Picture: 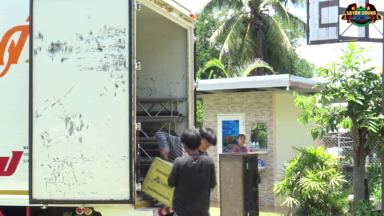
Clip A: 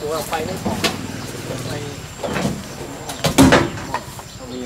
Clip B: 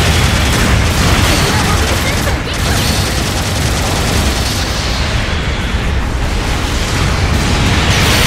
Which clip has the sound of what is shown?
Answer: A